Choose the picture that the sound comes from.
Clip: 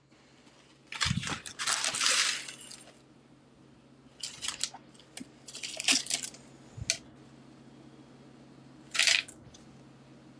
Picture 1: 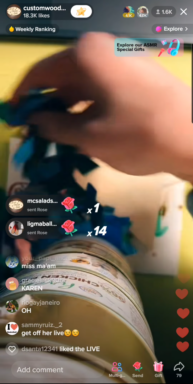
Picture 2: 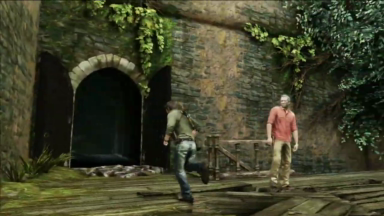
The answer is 1